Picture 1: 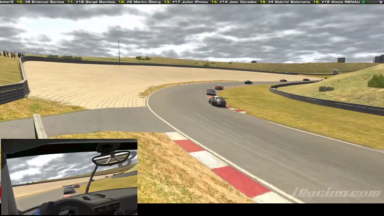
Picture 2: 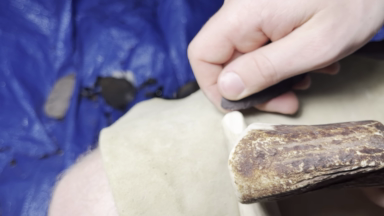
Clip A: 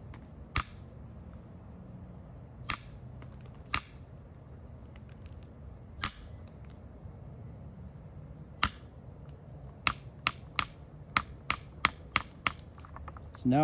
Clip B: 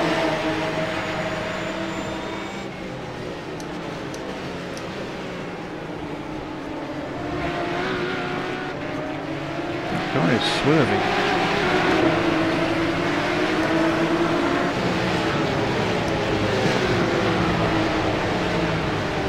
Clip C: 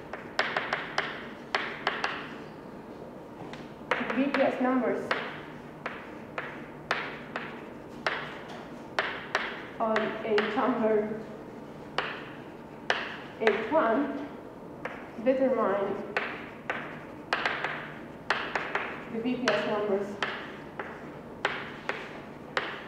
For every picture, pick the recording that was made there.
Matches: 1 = B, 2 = A